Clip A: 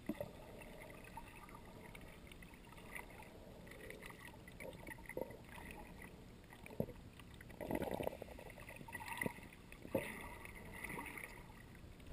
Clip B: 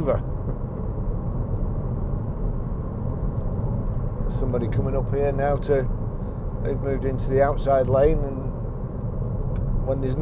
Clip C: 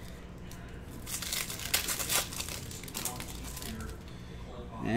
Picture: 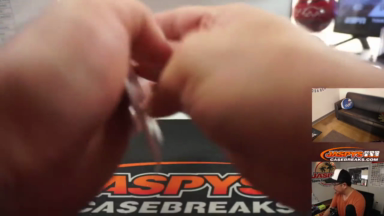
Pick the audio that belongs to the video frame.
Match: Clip C